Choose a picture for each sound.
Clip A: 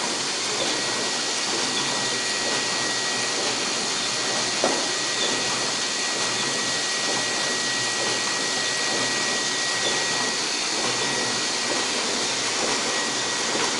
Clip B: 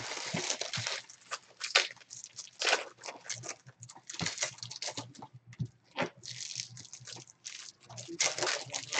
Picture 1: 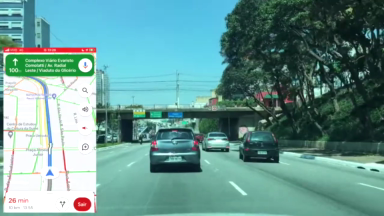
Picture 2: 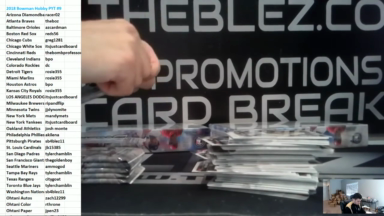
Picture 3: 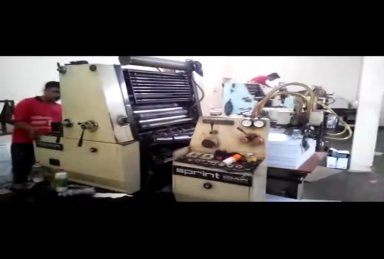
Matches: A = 3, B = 2